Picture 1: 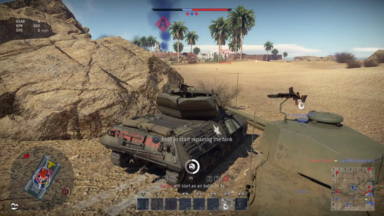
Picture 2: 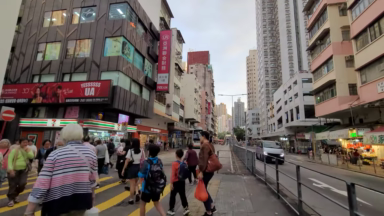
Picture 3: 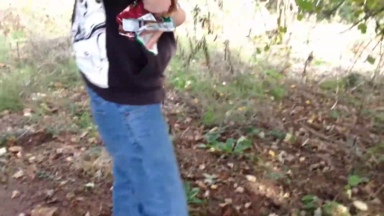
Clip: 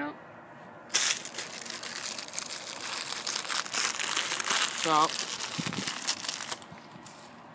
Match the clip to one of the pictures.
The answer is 3